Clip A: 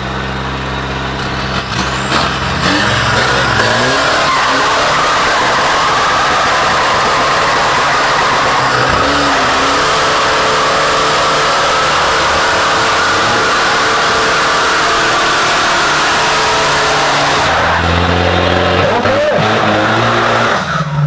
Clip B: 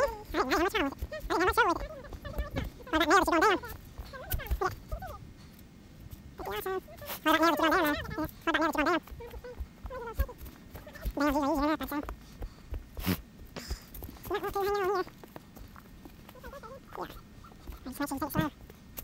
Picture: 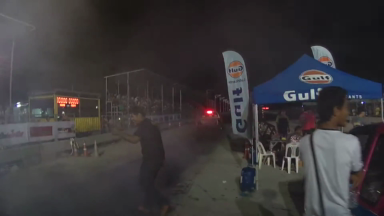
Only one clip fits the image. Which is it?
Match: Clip A